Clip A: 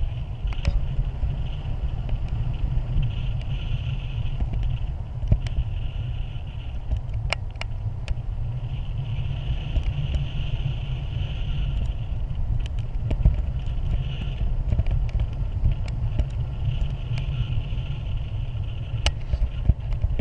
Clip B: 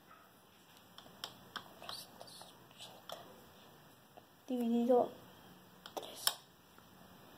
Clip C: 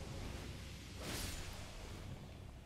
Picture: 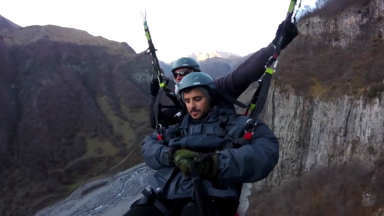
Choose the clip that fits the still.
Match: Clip A